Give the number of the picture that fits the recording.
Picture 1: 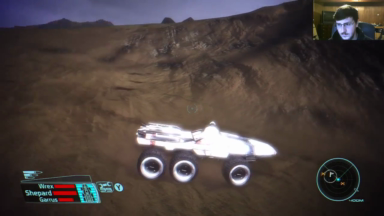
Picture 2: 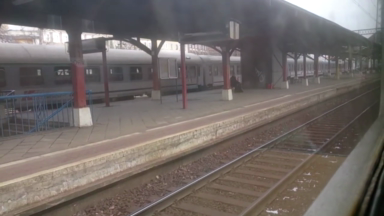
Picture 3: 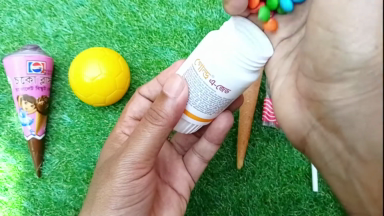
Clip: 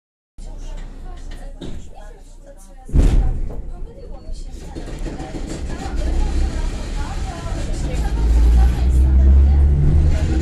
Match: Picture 2